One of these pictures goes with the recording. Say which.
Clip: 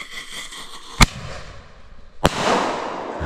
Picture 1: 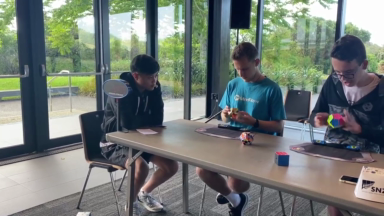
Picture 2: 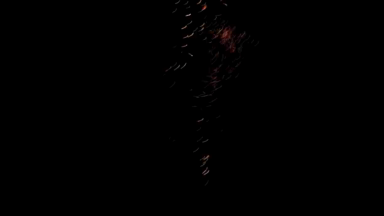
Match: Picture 2